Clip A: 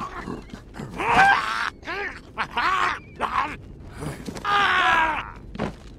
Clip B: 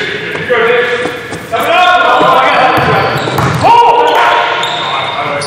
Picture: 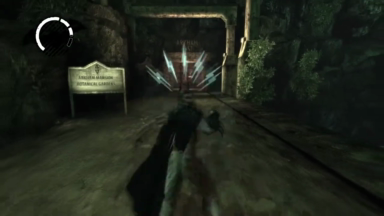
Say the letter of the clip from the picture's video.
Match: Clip A